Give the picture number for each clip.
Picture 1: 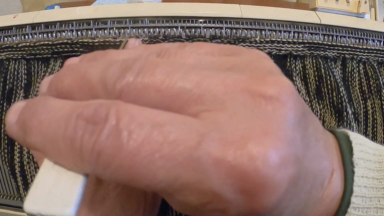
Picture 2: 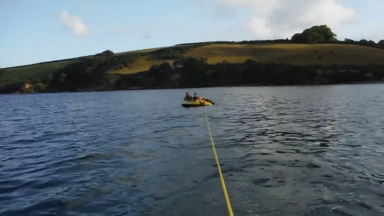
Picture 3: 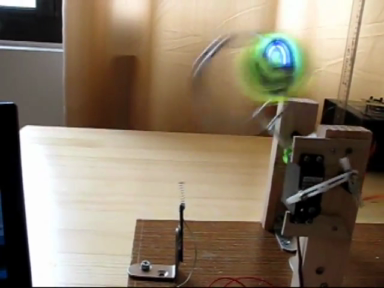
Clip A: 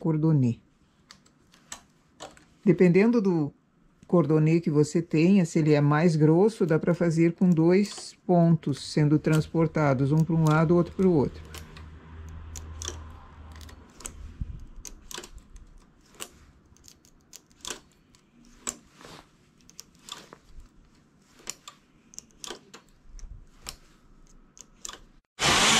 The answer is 1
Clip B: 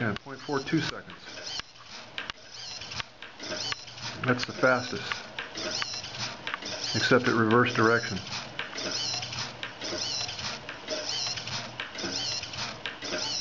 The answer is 3